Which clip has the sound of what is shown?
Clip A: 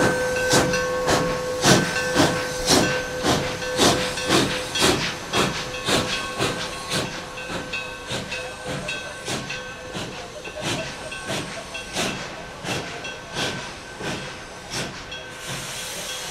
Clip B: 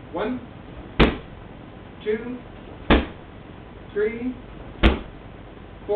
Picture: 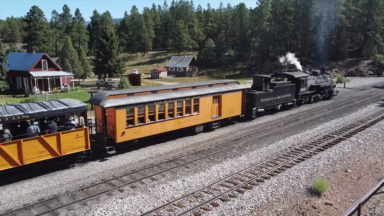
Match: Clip A